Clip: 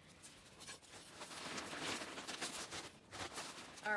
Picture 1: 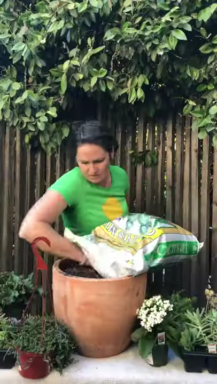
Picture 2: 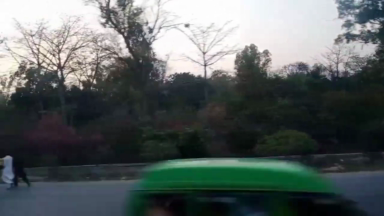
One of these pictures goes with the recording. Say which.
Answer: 1